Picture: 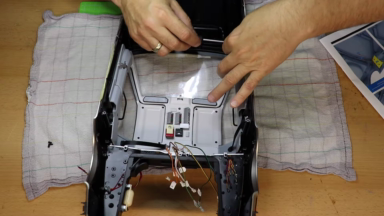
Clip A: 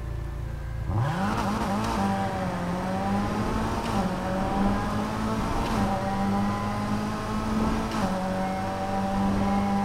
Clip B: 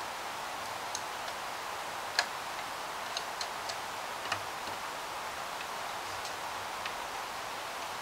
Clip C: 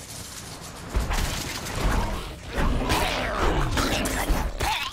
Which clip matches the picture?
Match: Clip B